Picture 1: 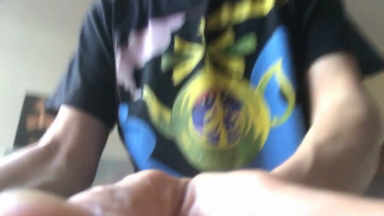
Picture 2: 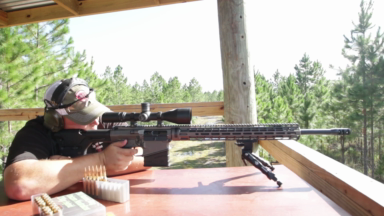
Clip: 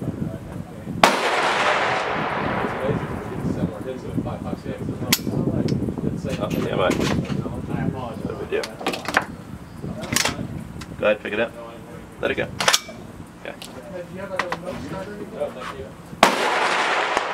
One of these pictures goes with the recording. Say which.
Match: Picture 2